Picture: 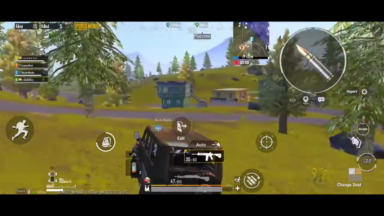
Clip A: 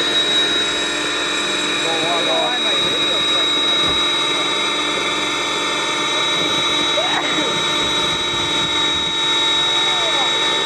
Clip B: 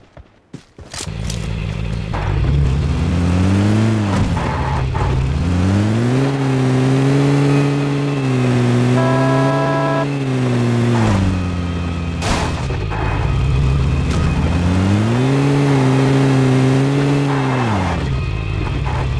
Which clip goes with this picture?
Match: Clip B